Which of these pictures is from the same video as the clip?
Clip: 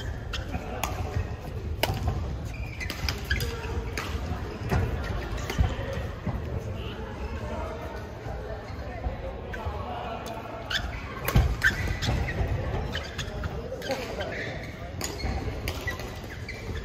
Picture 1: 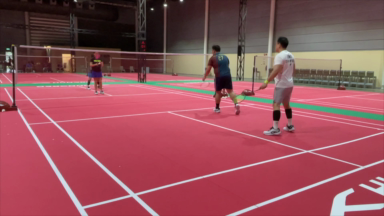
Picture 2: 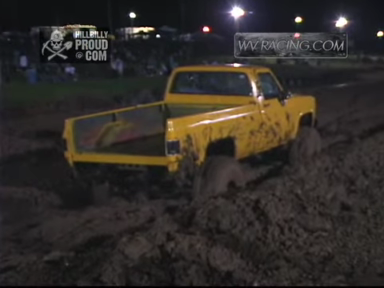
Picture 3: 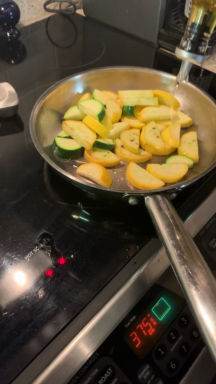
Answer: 1